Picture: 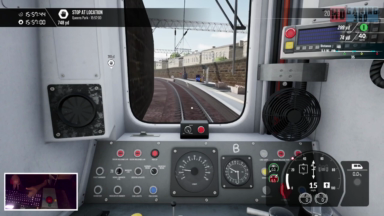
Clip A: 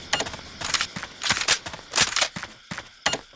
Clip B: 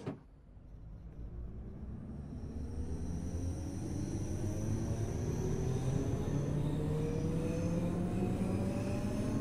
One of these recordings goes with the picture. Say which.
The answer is B